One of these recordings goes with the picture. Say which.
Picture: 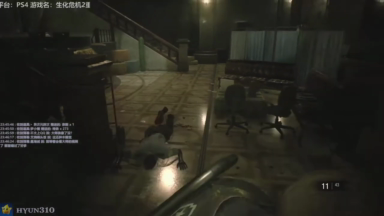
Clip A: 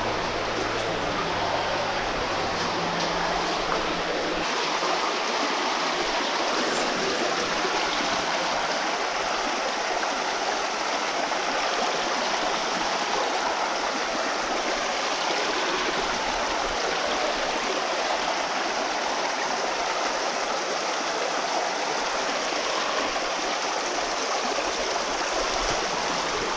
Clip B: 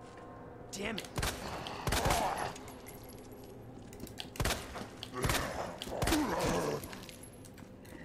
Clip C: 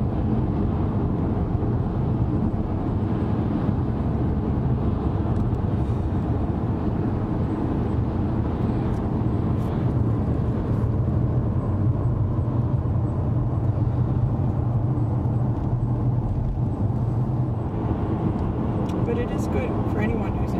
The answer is B